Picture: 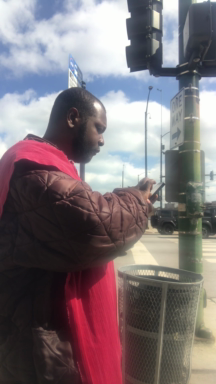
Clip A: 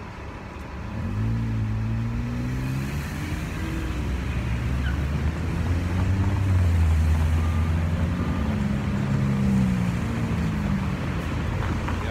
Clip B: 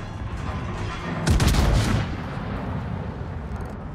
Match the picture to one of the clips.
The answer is A